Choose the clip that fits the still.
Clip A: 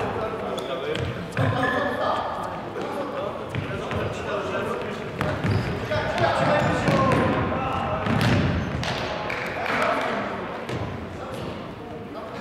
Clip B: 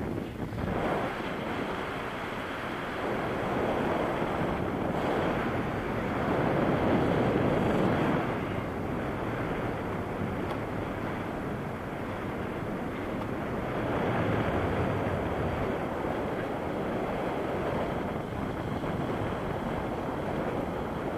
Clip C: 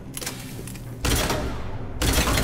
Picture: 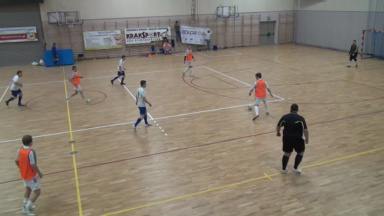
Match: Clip A